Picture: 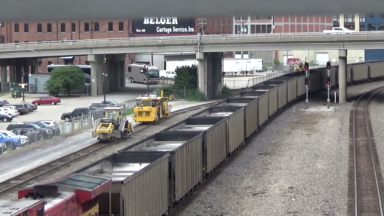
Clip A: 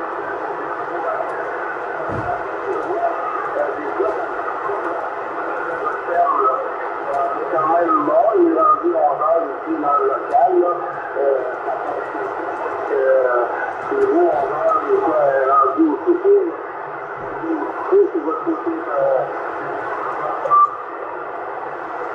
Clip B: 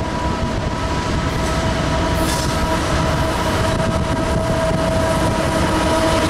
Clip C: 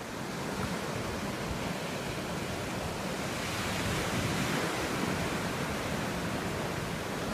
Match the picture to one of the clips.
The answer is B